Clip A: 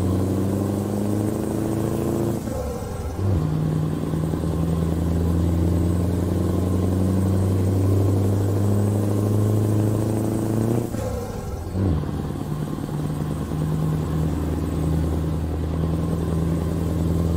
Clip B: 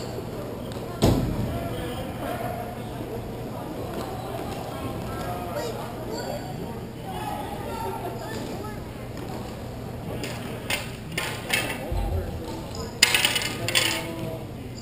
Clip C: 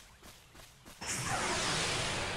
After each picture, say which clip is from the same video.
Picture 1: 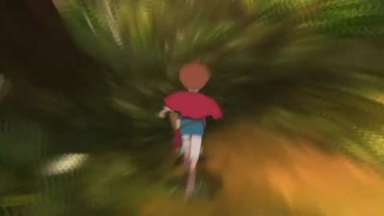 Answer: C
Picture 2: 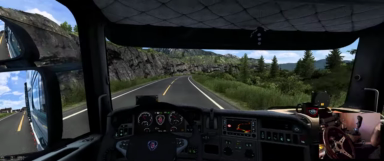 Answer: A